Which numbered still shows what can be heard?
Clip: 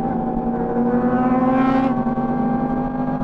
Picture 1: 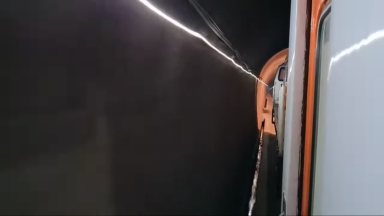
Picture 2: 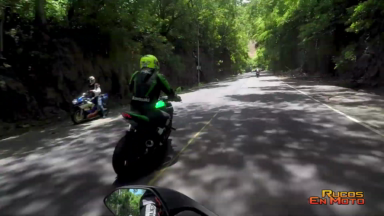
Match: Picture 2